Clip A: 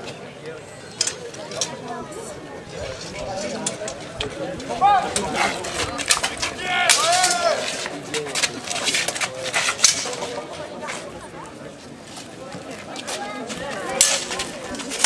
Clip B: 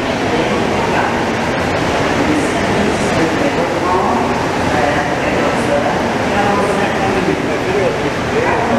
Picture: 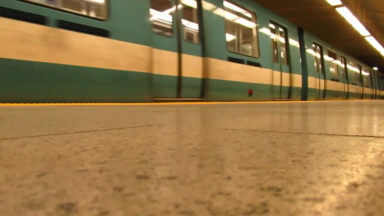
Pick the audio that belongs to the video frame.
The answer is B